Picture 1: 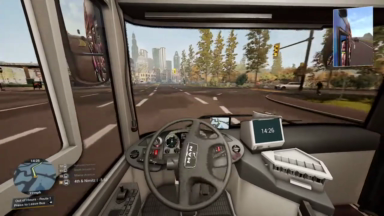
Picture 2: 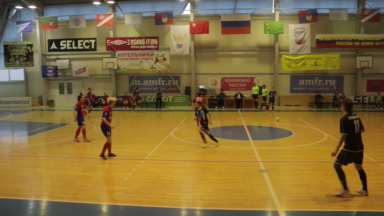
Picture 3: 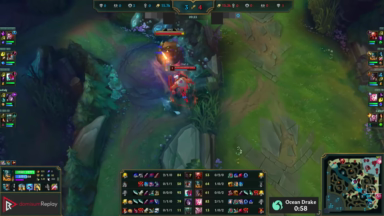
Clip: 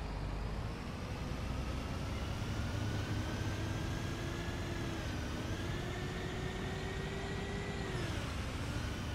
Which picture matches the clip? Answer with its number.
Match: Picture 1